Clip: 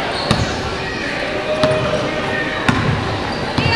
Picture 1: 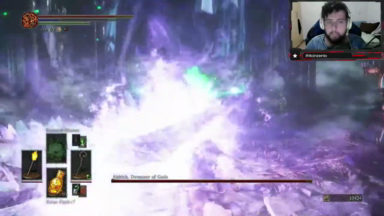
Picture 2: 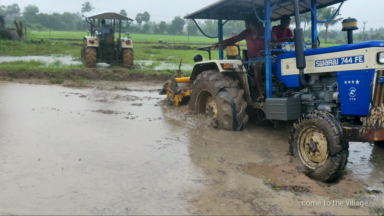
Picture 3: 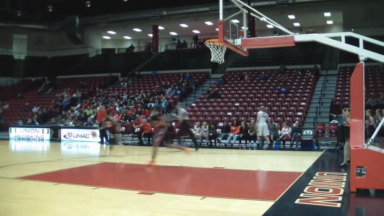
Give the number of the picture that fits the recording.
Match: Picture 3